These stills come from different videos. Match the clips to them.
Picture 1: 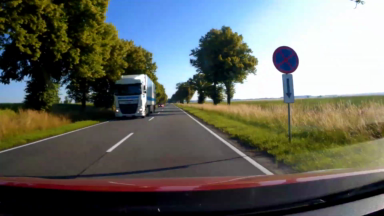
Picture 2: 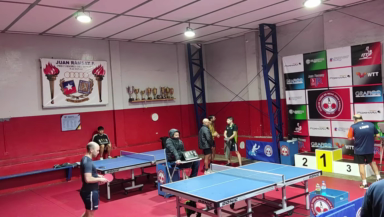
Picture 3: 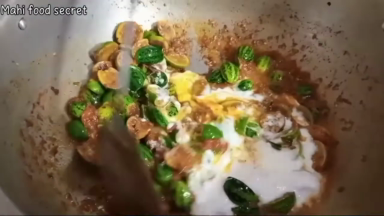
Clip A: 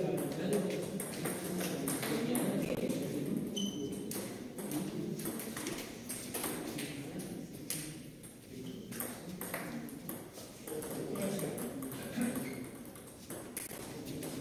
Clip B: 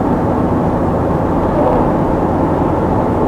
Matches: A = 2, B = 1